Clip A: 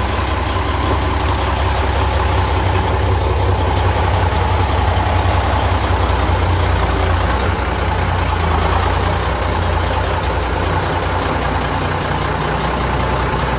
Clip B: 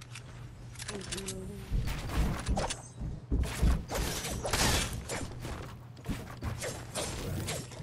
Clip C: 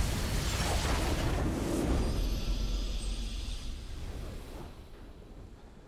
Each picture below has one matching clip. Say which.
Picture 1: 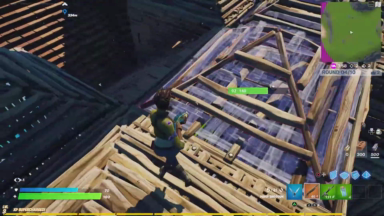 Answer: B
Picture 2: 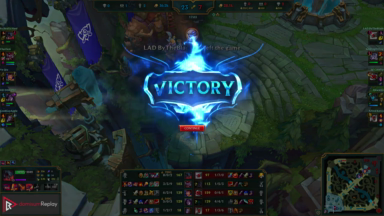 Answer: C